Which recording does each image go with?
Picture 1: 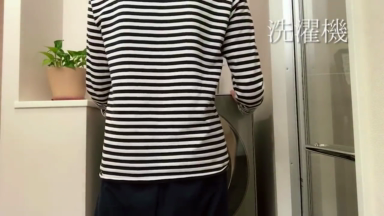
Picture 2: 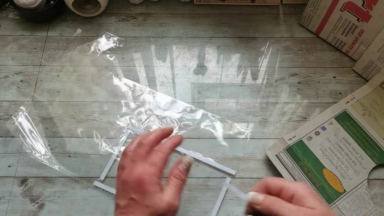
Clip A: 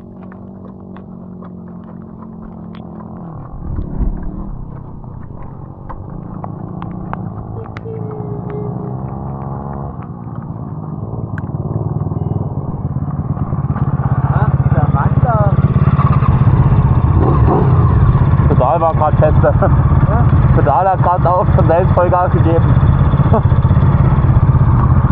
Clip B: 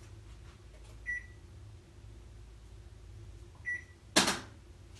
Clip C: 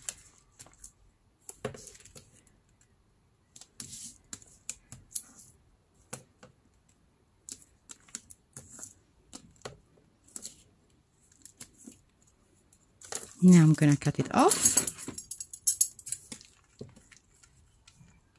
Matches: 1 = B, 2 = C